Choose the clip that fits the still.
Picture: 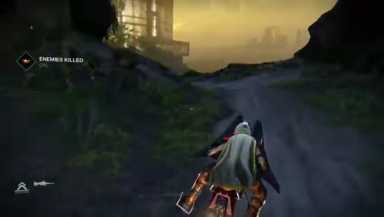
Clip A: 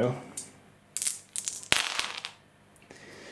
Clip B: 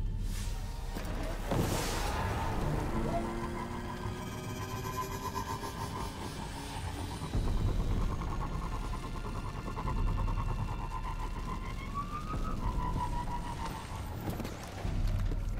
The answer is B